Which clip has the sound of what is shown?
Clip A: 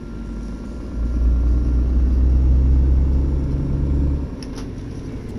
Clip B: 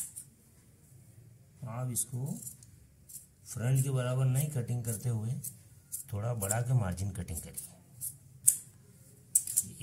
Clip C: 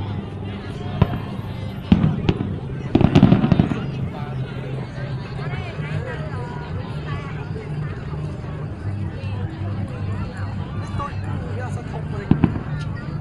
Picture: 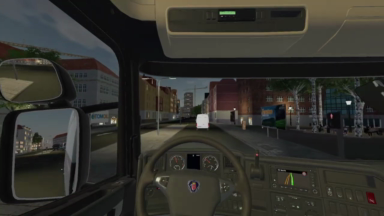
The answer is A